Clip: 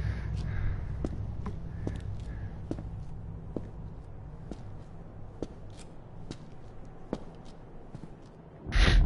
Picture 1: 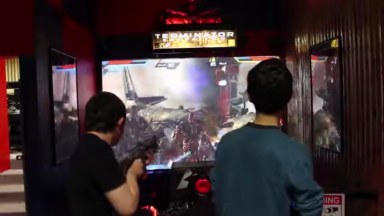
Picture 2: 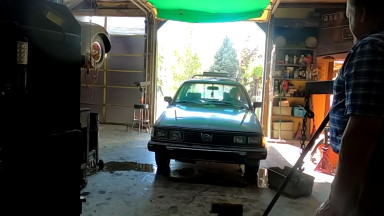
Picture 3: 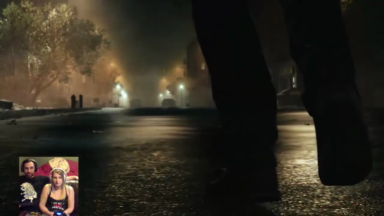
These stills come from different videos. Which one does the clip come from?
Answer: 3